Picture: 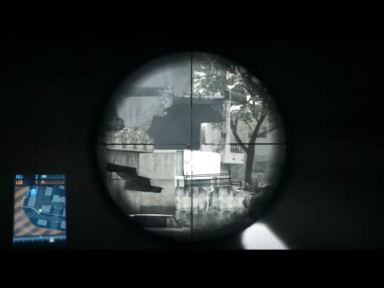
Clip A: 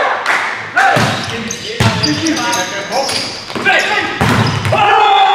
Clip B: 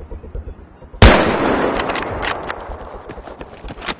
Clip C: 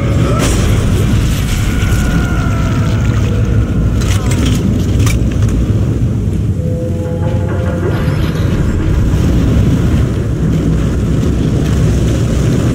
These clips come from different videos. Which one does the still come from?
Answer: B